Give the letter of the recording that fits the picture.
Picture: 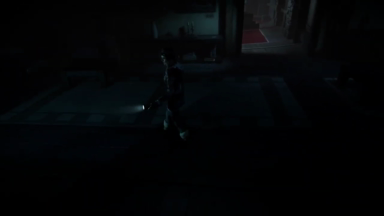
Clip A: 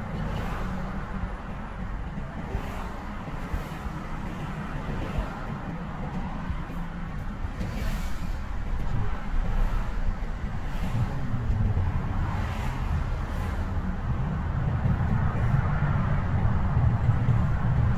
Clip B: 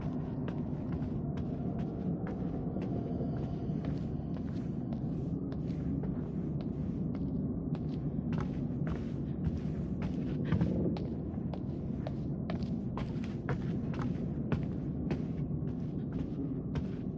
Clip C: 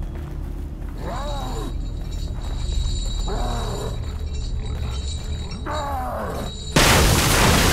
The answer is B